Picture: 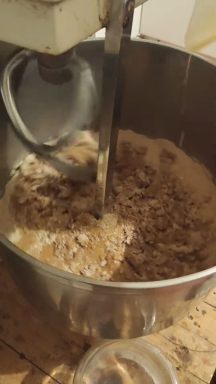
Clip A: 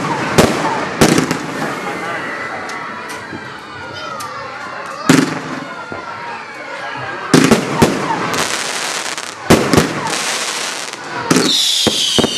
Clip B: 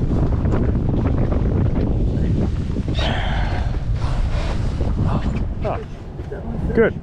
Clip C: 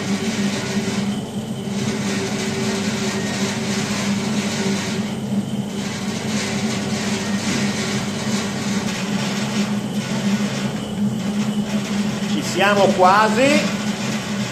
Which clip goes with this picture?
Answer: C